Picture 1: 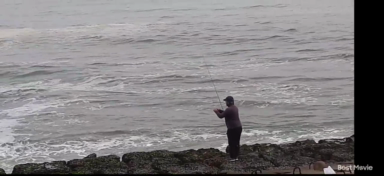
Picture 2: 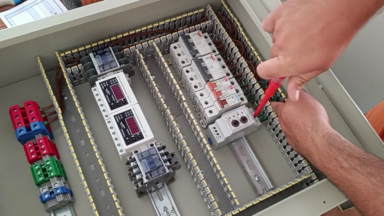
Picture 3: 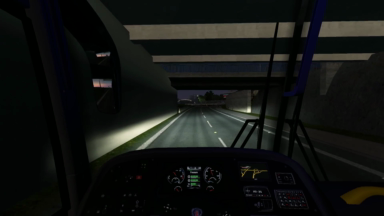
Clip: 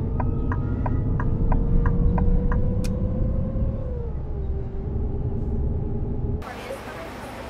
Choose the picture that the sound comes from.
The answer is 3